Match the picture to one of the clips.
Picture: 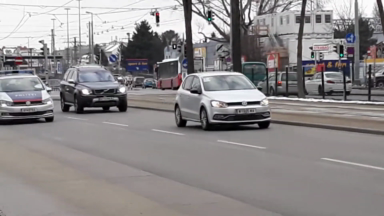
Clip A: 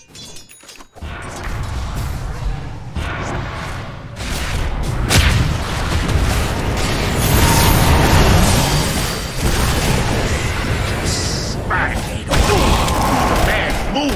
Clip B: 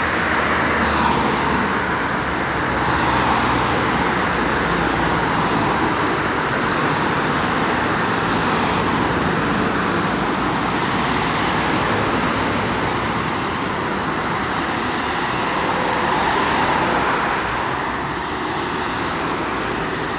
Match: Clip B